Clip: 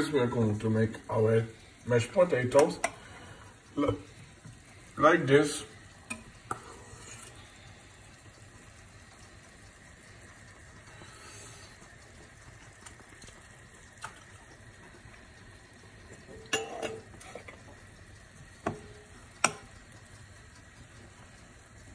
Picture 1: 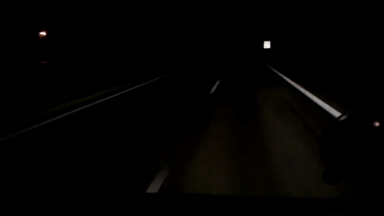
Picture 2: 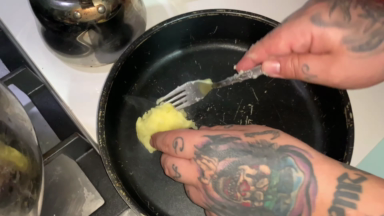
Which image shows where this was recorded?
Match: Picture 2